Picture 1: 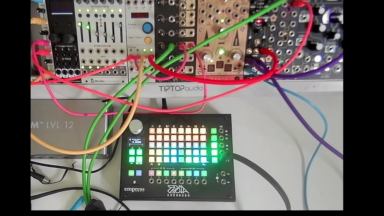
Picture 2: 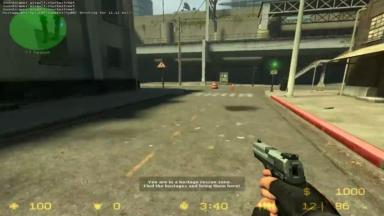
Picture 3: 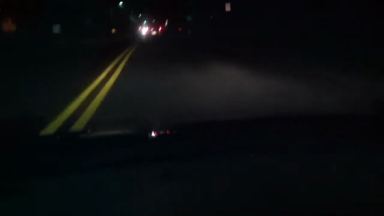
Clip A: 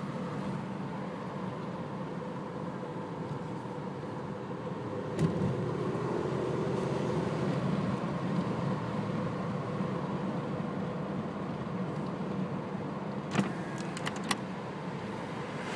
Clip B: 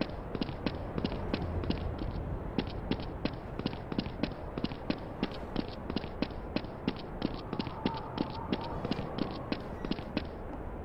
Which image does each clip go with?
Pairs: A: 3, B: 2